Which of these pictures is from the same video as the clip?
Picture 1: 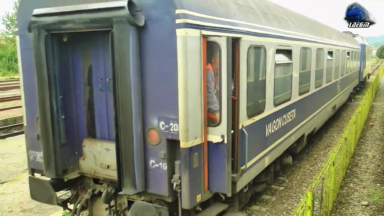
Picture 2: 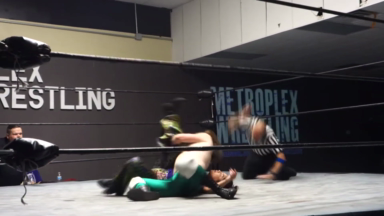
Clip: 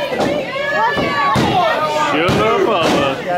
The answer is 2